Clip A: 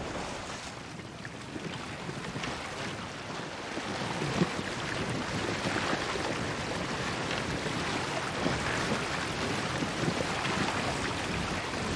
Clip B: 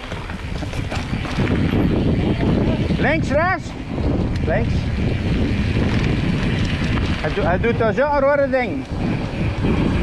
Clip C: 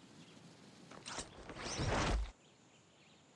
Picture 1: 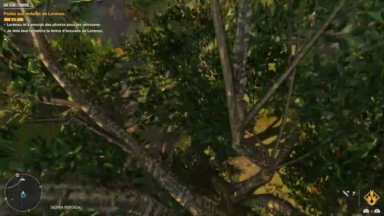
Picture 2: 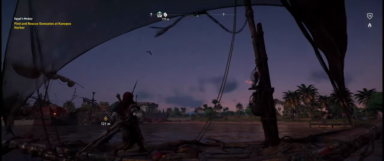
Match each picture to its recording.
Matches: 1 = C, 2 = A